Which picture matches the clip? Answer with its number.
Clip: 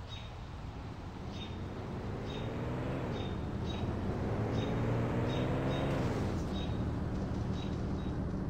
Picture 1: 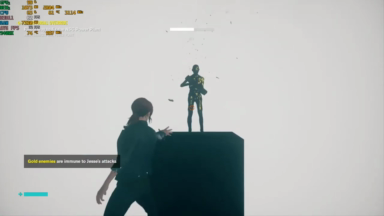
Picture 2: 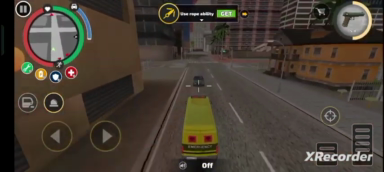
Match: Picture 2